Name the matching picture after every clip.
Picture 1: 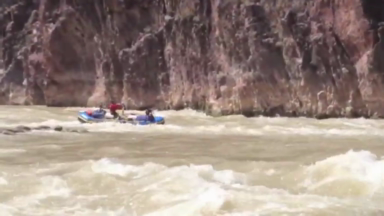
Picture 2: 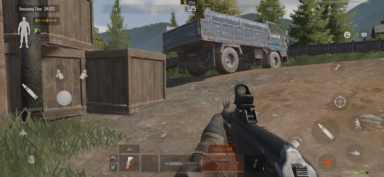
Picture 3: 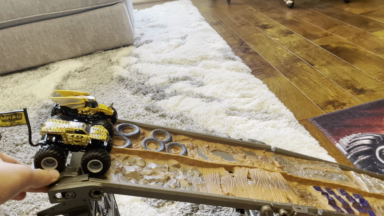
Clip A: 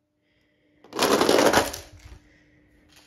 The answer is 3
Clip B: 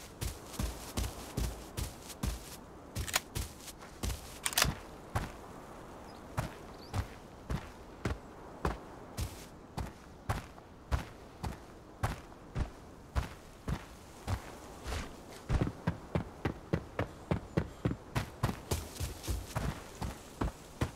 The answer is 2